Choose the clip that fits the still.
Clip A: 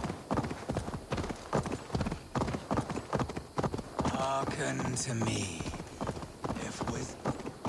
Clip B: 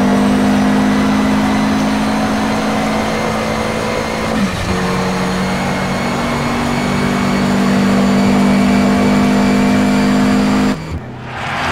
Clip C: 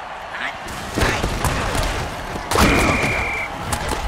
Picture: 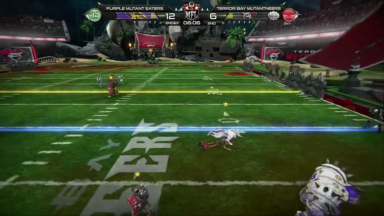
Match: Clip C